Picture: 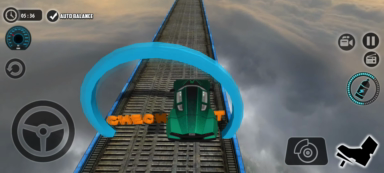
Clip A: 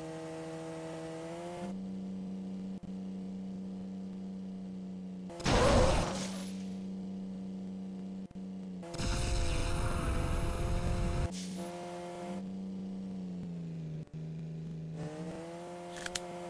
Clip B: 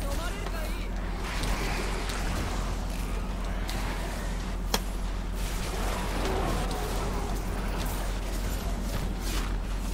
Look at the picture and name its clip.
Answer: A